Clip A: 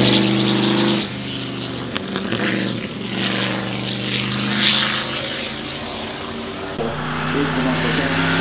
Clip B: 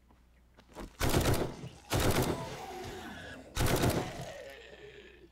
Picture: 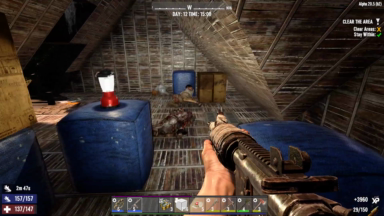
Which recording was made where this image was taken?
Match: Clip B